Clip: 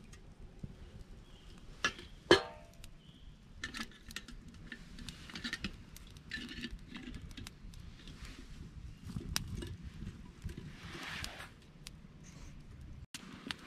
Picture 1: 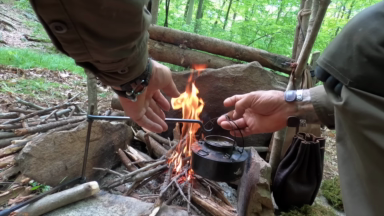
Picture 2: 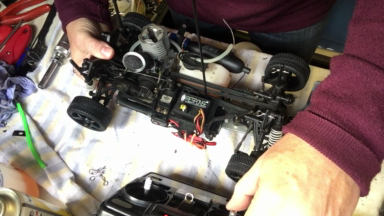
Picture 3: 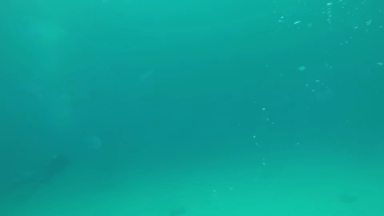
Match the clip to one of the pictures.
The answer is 1